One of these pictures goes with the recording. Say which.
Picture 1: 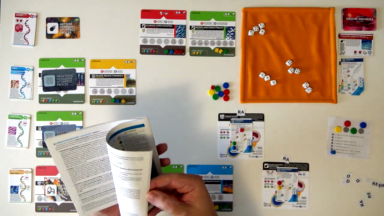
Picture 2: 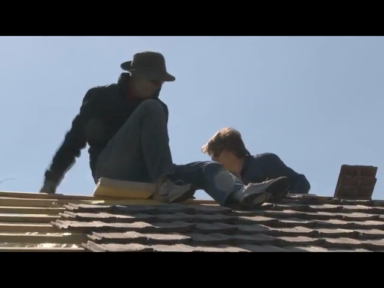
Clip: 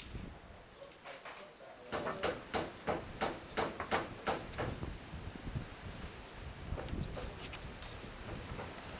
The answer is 2